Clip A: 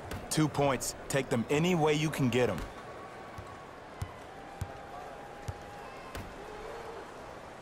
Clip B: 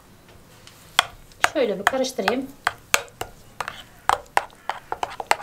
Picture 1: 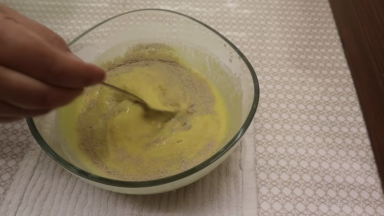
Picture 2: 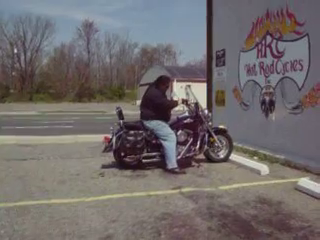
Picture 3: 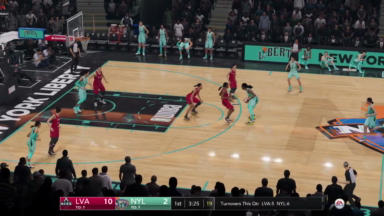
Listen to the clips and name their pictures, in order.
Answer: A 3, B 1